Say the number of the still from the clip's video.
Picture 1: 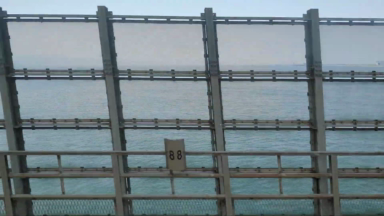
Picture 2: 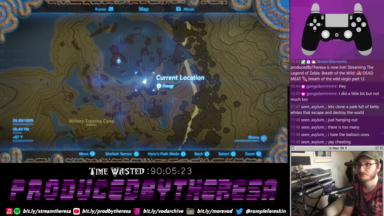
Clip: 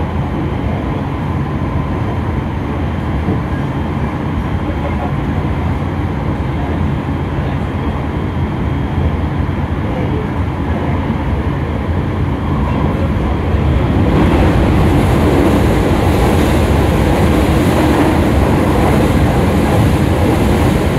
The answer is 1